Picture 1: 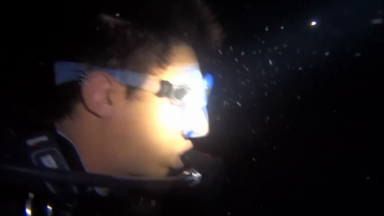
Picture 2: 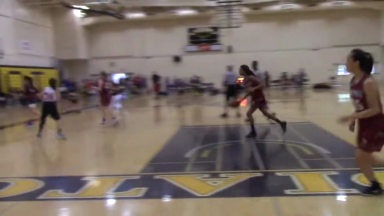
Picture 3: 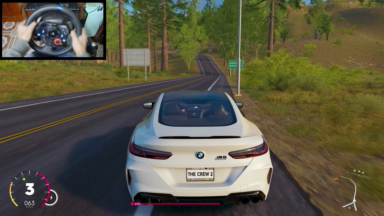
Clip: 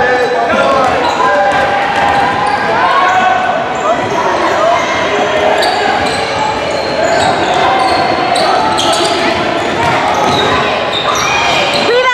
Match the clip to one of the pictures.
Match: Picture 2